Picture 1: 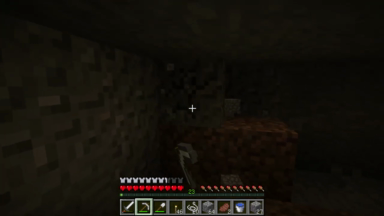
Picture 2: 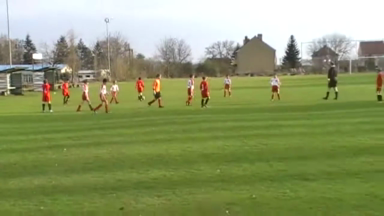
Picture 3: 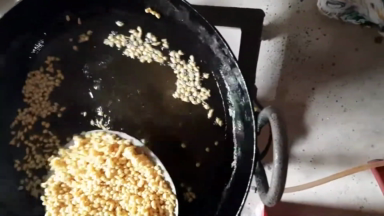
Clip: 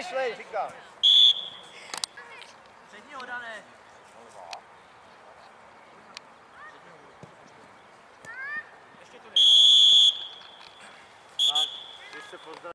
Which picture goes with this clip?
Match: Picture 2